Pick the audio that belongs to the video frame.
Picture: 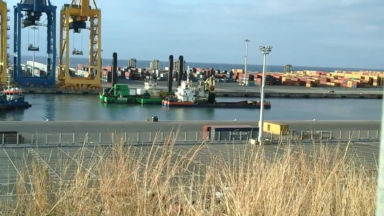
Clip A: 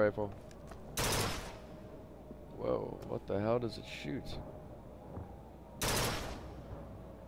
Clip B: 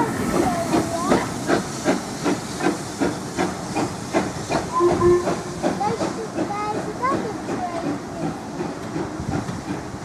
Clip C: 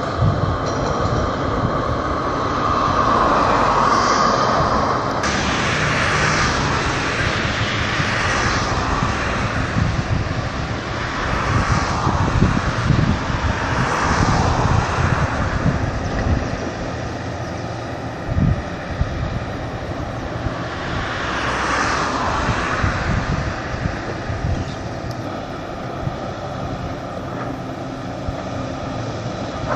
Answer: C